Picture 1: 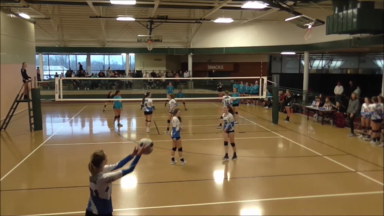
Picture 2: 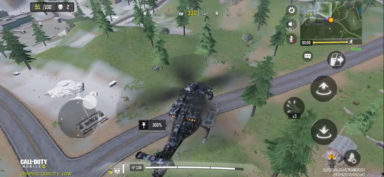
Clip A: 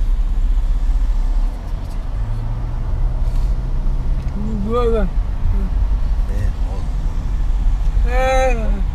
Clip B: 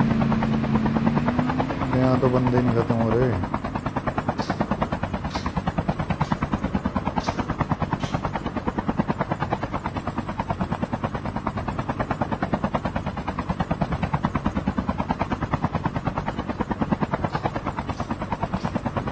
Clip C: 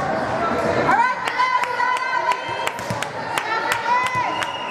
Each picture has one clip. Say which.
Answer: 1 C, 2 B